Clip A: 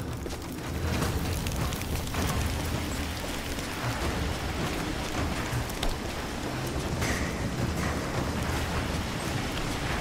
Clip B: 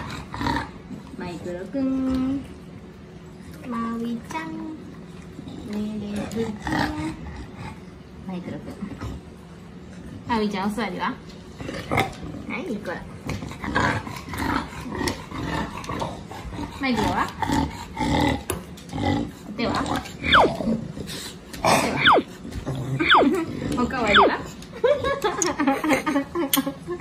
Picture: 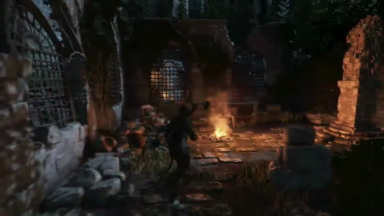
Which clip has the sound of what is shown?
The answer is A